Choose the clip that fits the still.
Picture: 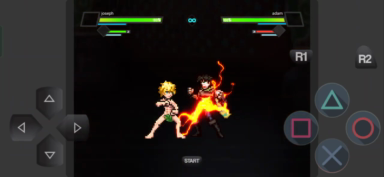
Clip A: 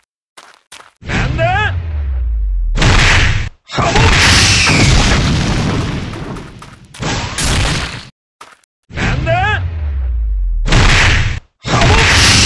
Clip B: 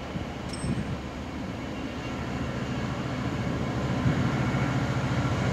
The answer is A